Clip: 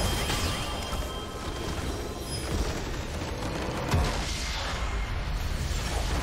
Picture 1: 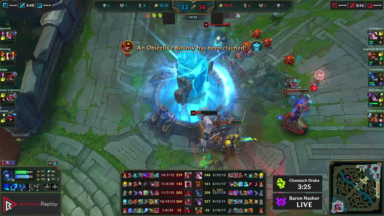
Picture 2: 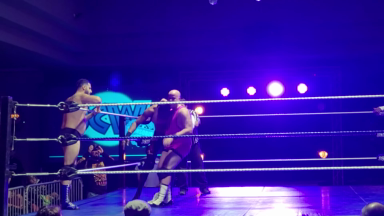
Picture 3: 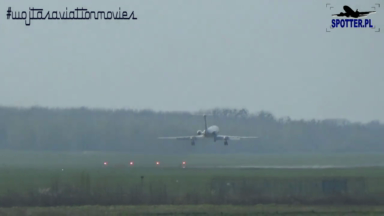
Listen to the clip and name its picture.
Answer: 1